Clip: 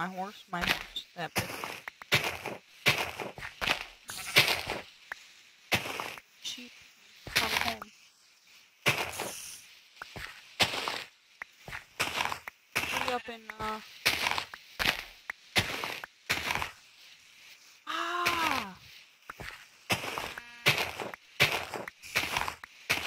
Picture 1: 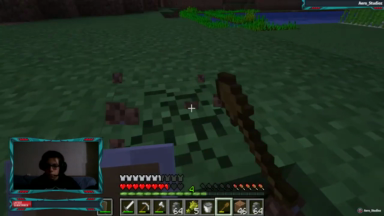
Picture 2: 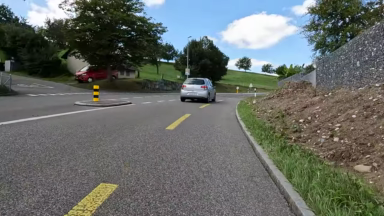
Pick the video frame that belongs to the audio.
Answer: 1